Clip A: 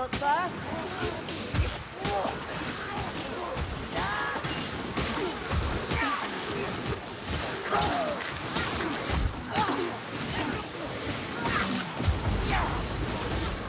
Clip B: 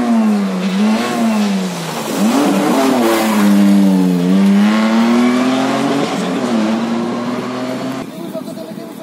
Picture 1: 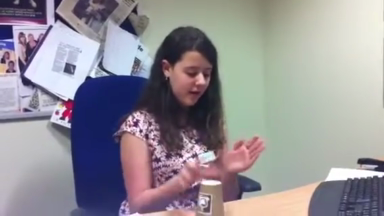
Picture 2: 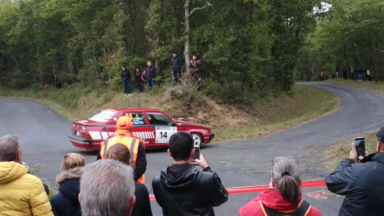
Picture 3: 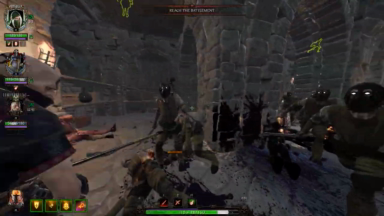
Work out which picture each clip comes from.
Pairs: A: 3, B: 2